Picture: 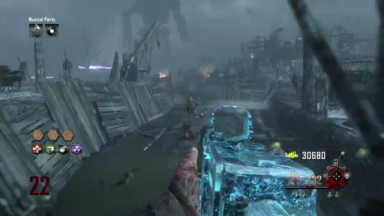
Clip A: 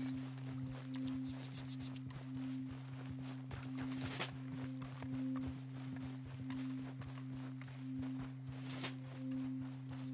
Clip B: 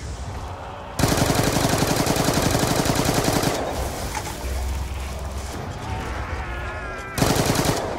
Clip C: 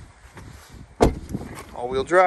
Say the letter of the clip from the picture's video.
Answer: B